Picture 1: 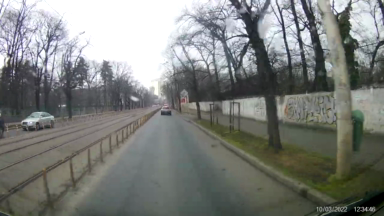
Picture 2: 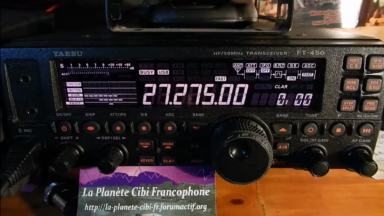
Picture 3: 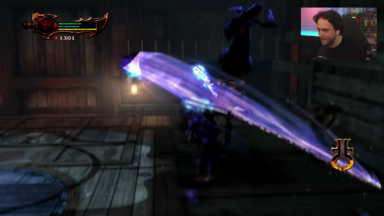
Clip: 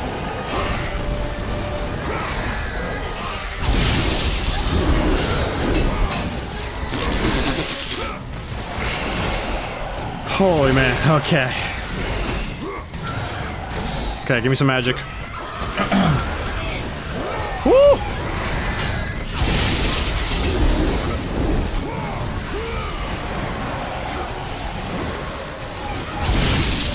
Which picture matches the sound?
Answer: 3